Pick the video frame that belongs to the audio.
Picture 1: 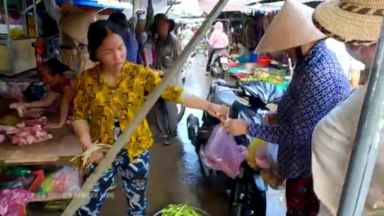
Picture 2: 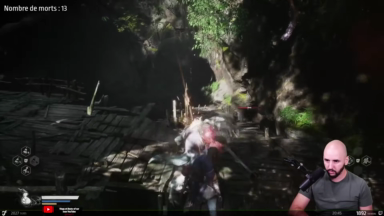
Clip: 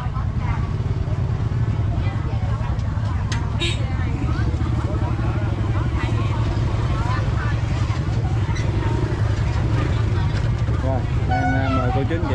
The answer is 1